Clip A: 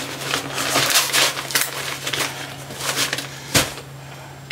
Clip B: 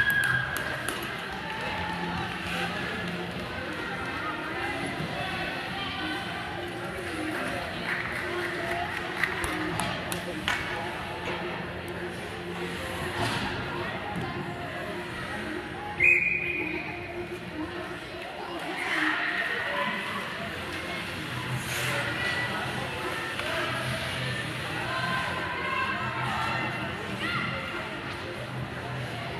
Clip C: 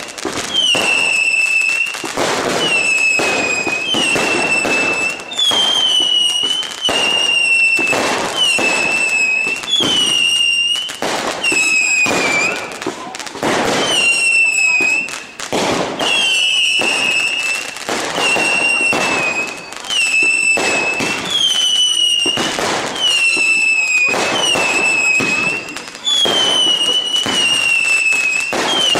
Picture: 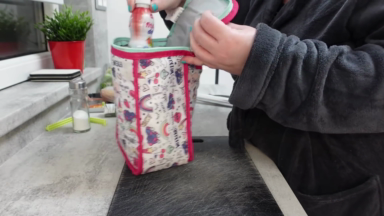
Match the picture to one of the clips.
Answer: A